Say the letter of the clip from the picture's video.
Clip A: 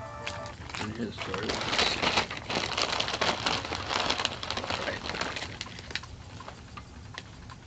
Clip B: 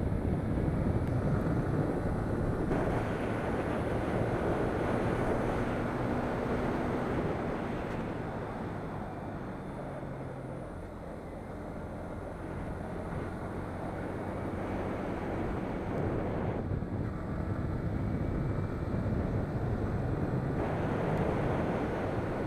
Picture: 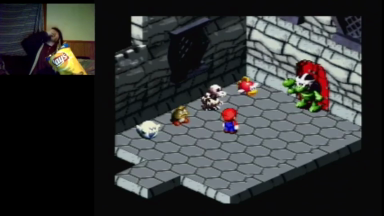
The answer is A